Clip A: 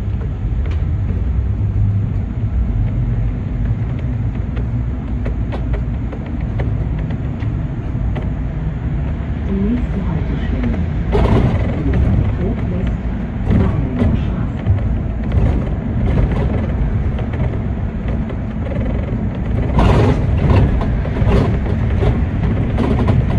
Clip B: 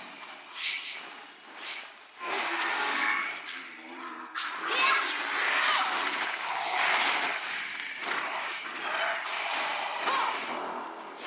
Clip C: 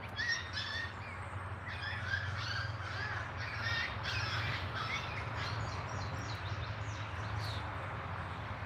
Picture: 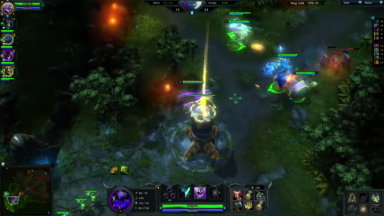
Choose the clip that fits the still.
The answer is B